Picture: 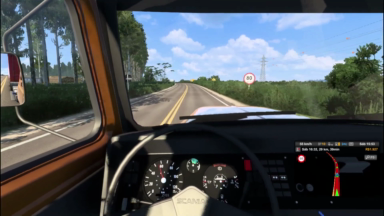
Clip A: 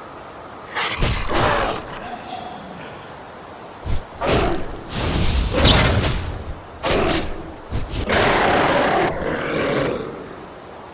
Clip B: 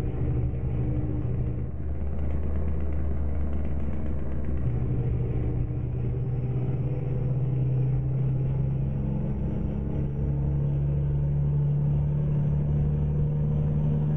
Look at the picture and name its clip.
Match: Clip B